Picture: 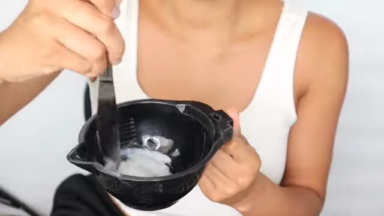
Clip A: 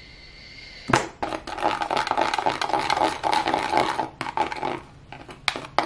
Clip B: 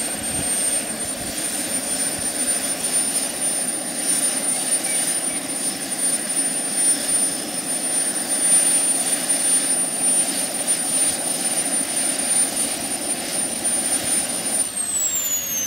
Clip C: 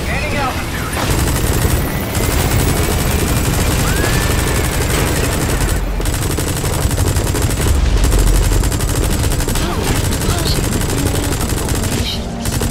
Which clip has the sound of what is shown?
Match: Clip A